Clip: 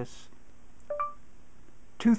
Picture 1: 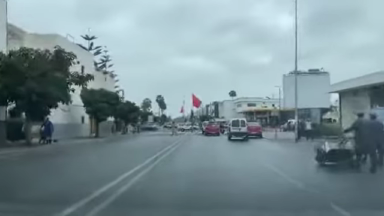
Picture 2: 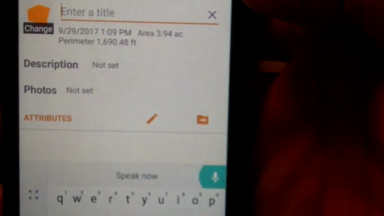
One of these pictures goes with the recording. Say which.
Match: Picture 2